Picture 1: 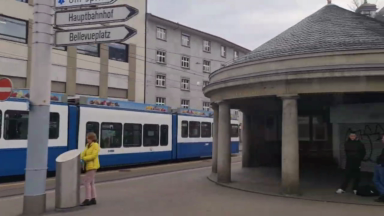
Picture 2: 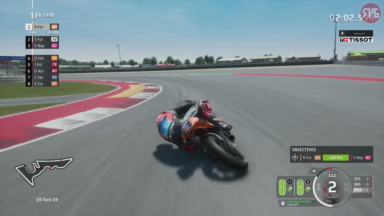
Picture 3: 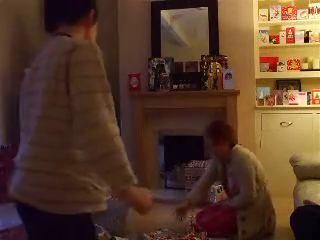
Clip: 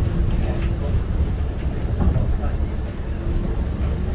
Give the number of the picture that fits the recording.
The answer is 1